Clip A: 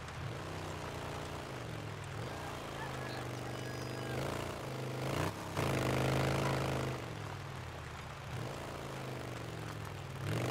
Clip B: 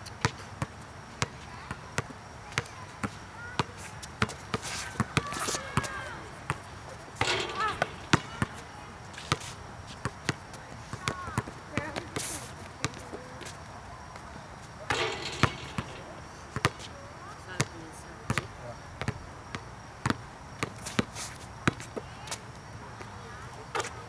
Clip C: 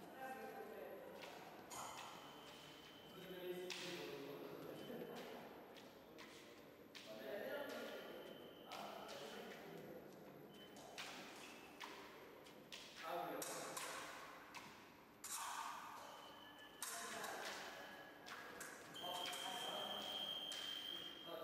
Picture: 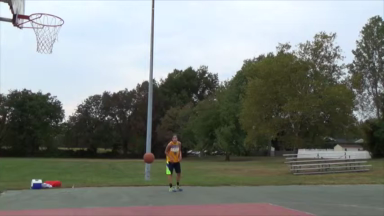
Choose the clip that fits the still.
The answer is B